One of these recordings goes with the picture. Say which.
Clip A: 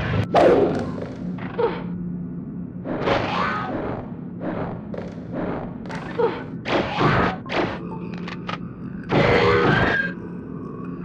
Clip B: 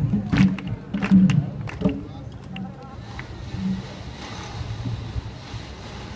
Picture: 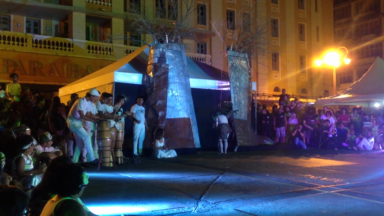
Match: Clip B